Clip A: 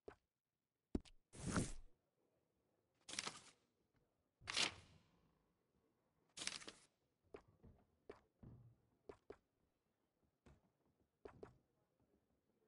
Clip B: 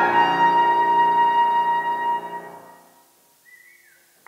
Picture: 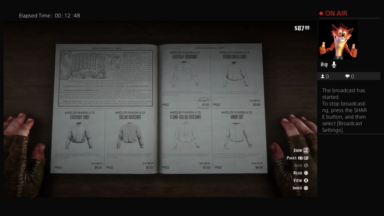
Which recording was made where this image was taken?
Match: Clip A